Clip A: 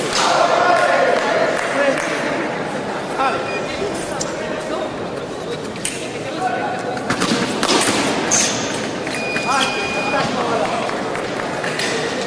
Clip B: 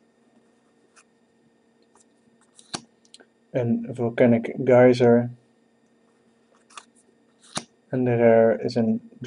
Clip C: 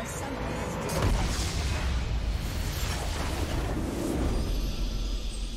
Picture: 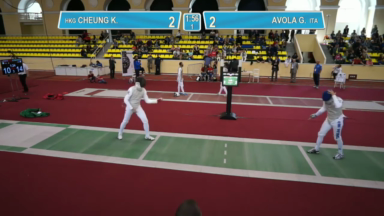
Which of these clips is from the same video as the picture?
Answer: A